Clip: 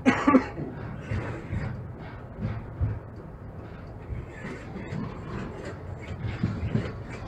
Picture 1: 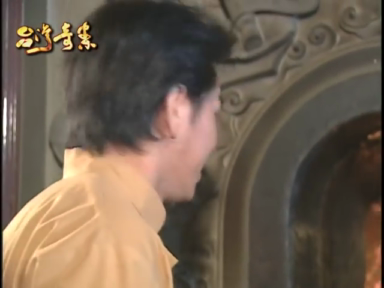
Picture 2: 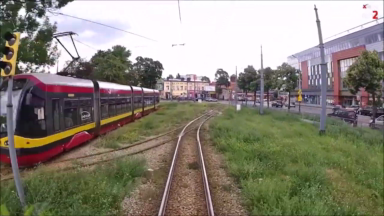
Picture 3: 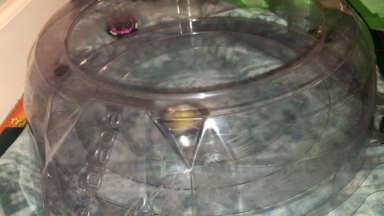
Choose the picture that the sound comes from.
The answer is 2